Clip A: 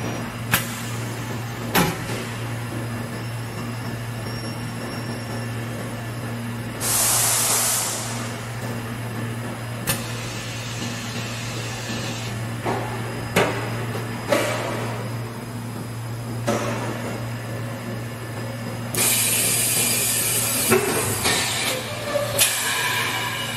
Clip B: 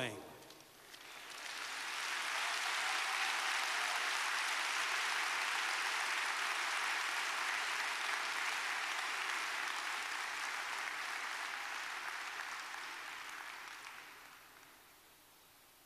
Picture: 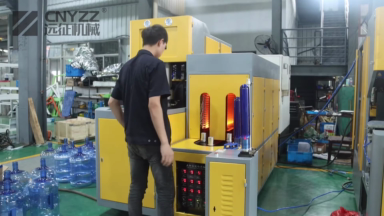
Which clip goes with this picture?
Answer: A